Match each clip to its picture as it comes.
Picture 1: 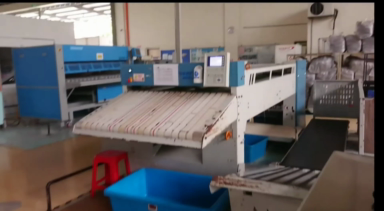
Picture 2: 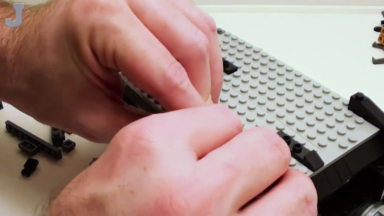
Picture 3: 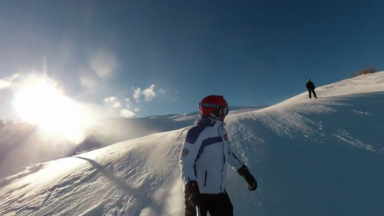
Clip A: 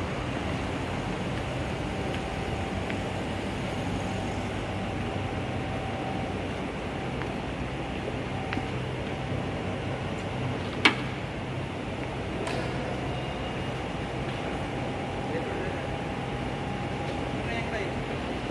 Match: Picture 1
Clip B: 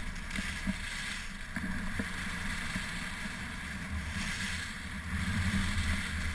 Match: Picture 3